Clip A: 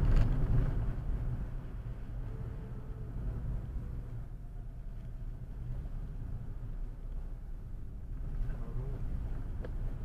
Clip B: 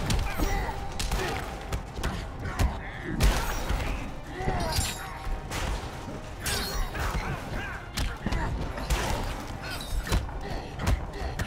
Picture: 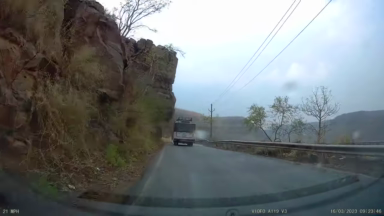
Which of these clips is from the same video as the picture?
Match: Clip A